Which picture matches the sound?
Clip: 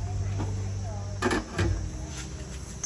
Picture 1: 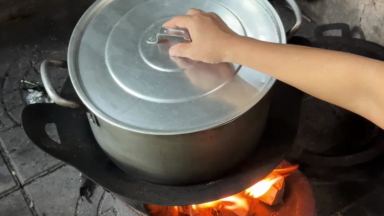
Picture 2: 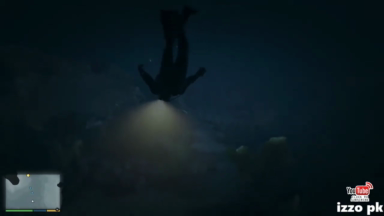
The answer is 1